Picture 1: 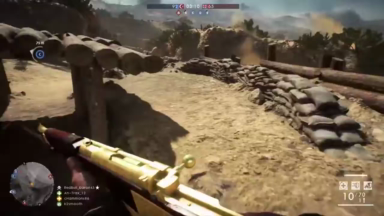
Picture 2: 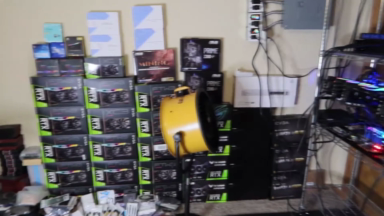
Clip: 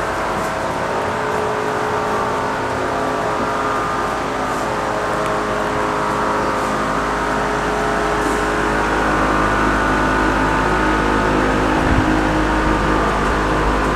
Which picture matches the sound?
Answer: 2